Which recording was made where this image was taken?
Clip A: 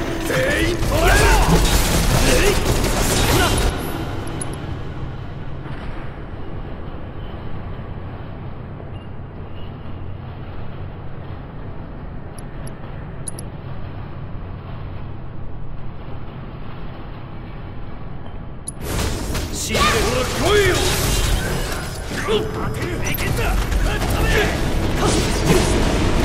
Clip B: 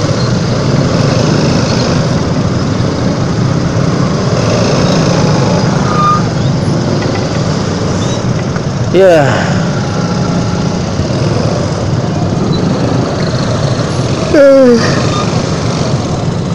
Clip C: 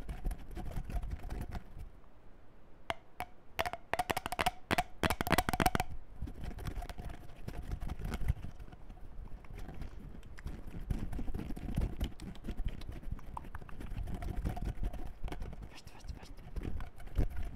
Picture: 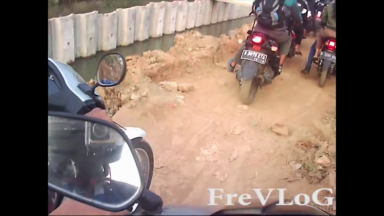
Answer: B